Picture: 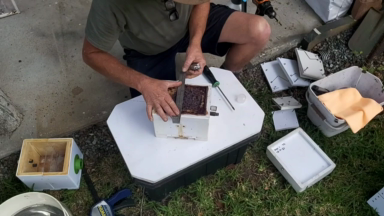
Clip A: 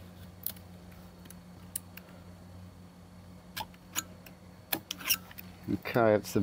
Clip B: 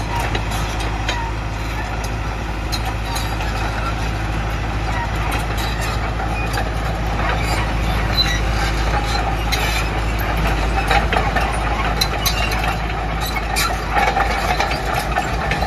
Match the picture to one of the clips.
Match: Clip A